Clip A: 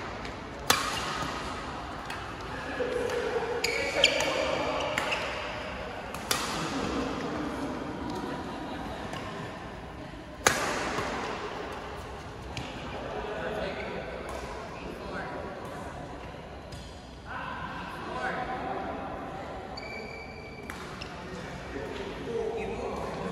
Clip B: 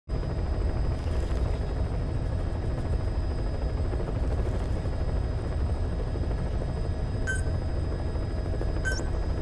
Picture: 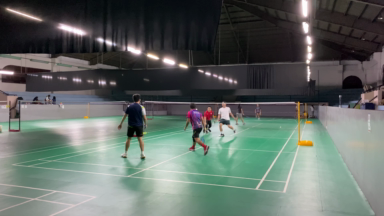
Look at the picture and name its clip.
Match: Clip A